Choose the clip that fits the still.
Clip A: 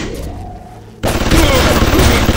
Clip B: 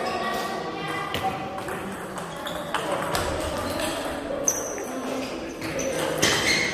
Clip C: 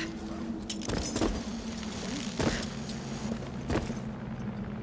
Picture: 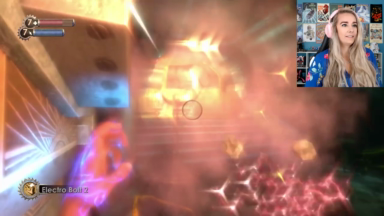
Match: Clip A